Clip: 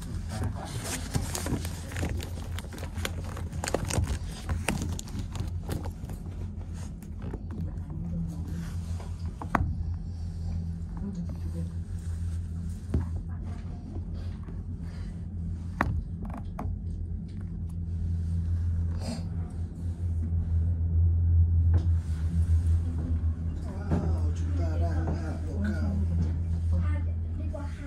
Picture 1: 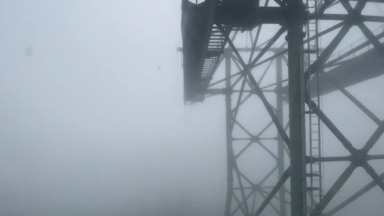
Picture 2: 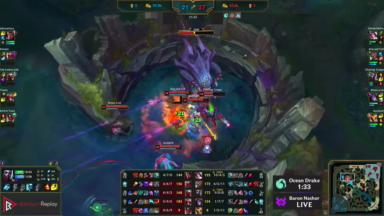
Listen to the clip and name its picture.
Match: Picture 1